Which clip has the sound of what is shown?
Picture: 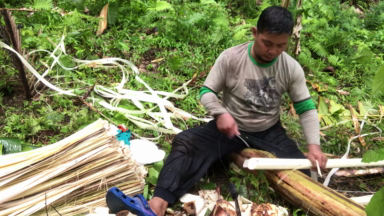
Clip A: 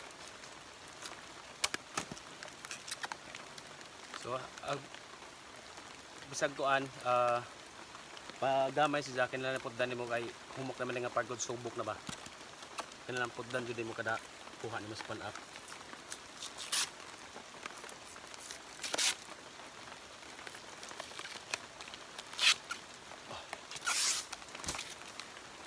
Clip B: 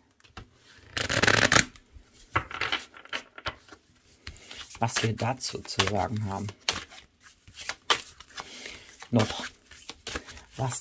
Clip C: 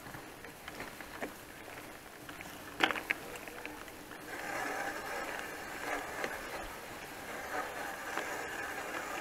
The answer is A